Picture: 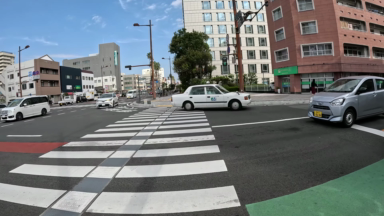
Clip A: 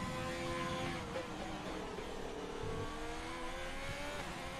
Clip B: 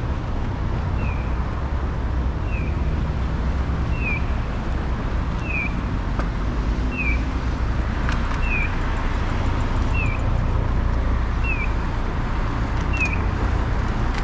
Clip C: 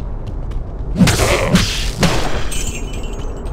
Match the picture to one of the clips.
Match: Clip B